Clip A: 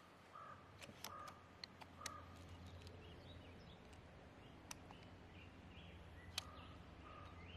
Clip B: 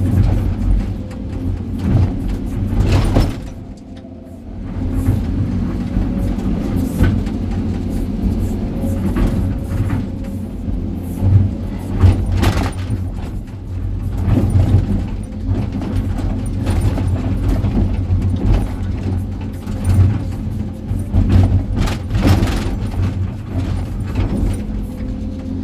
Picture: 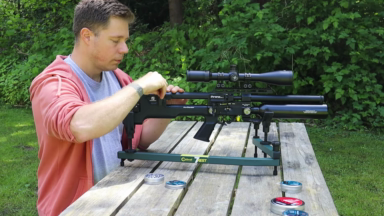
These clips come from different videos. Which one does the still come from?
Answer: A